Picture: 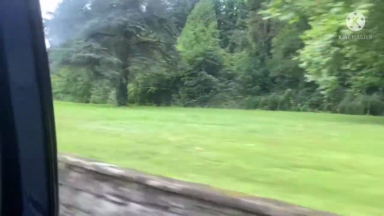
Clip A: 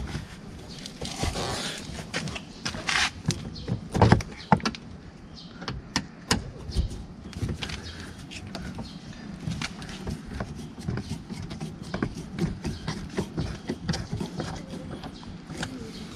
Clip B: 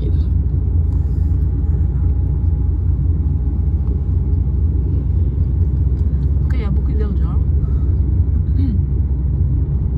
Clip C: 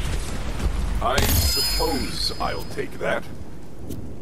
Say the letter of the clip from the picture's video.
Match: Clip B